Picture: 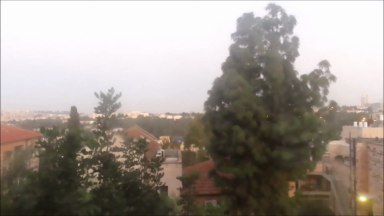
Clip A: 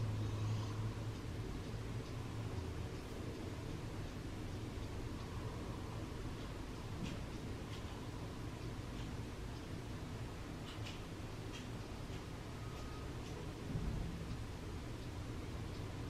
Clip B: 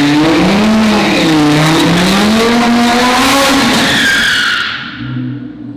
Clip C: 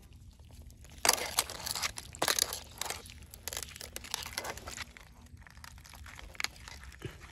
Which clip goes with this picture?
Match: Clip A